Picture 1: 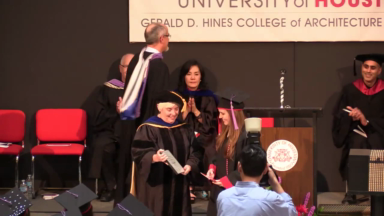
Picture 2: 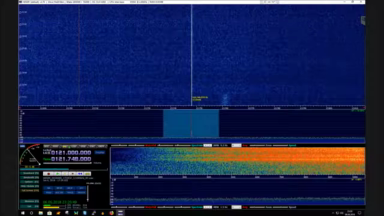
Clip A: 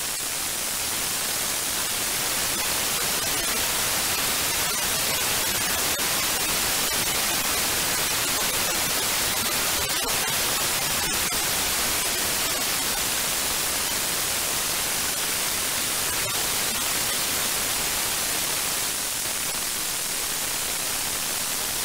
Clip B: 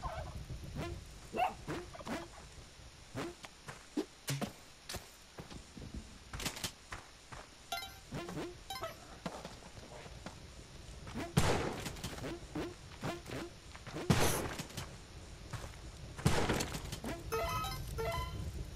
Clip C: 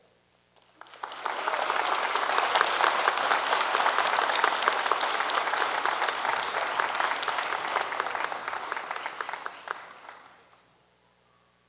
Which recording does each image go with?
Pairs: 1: C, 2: A